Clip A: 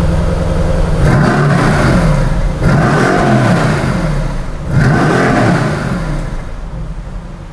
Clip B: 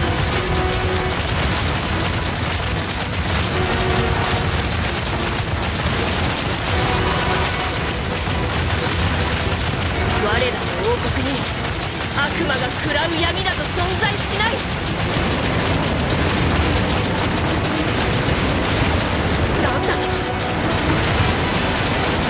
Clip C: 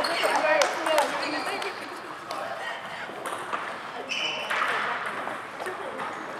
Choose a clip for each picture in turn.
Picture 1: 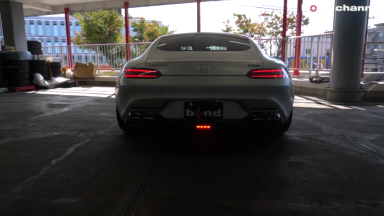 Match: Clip A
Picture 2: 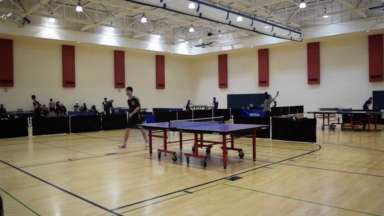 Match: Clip C